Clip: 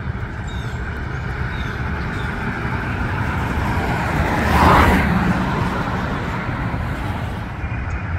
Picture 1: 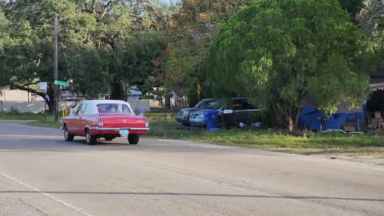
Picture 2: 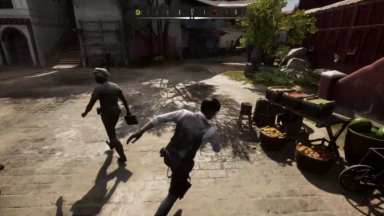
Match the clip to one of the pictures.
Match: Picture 1